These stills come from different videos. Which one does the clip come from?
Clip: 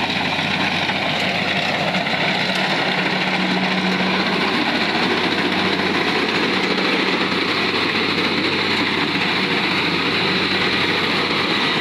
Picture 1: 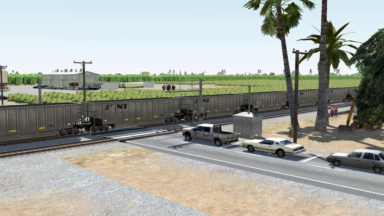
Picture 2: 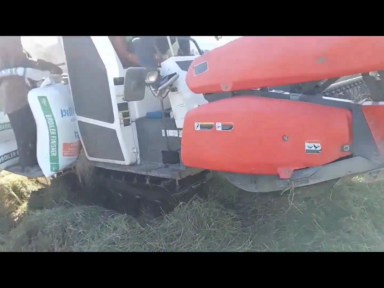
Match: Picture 2